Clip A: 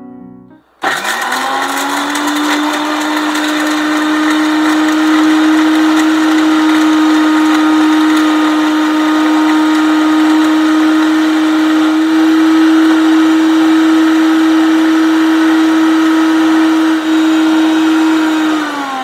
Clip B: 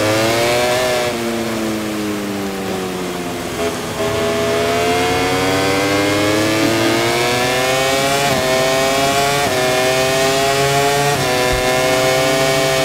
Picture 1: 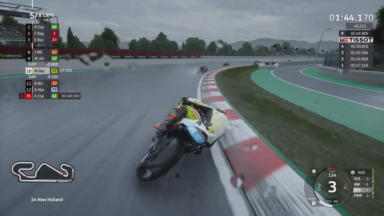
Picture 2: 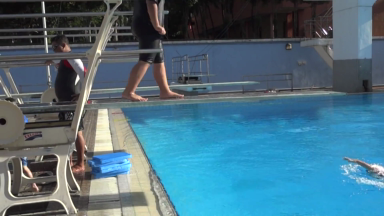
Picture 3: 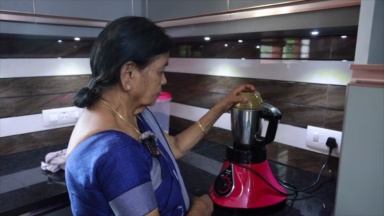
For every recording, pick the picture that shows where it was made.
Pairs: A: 3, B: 1